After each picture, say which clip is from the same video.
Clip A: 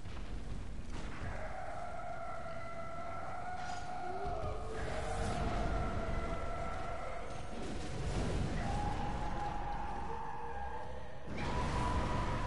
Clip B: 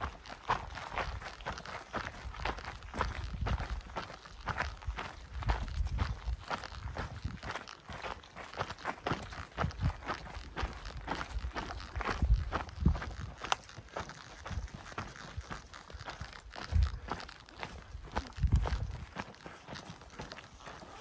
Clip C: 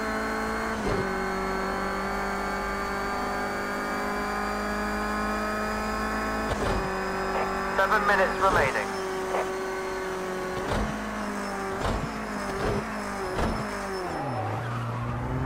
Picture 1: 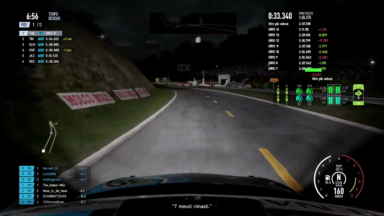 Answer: C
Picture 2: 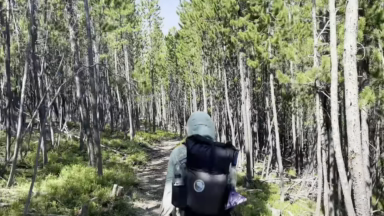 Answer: B